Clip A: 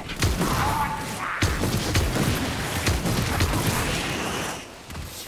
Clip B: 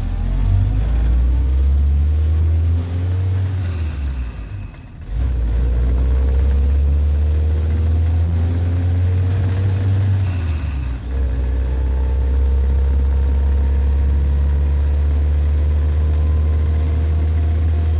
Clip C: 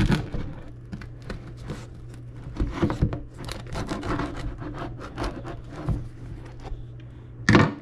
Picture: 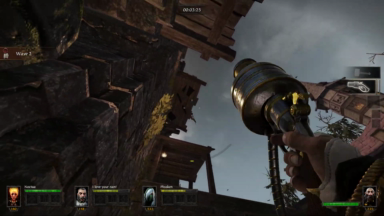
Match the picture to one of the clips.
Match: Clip A